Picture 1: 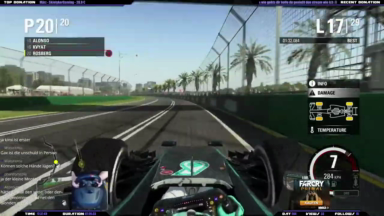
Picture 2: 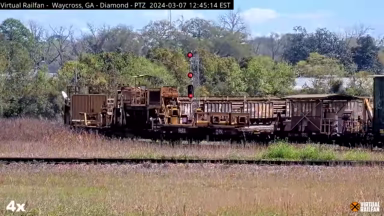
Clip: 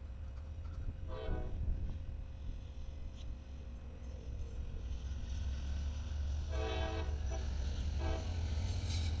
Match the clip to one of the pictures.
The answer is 2